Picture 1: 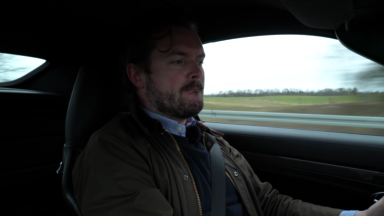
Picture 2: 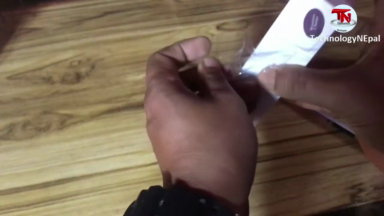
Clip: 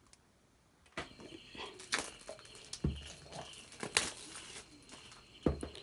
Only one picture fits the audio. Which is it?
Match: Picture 2